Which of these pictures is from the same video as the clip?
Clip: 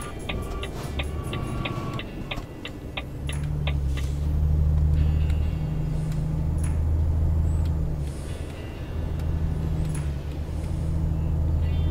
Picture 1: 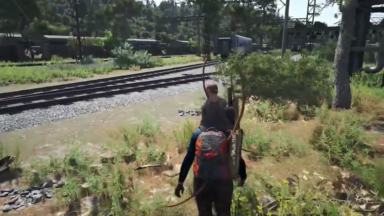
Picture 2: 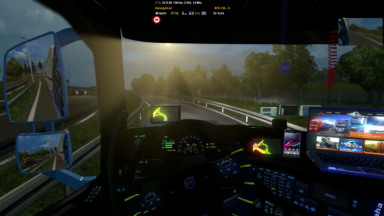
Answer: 2